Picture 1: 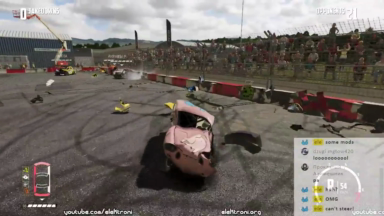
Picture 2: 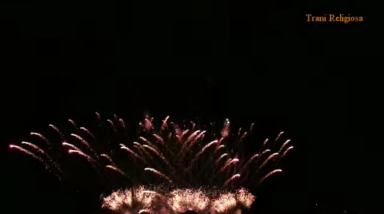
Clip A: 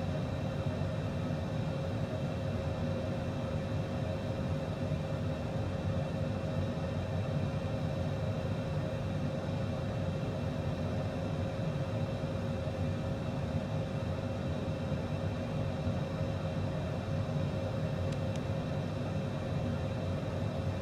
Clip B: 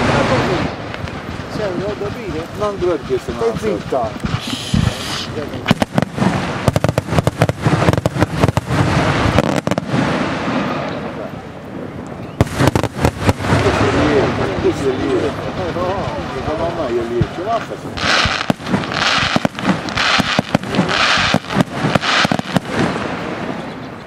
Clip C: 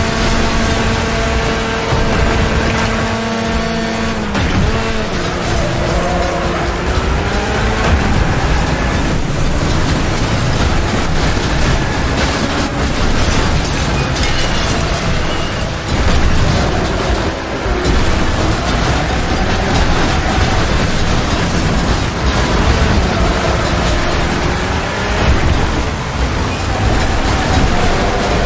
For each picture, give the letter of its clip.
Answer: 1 C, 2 B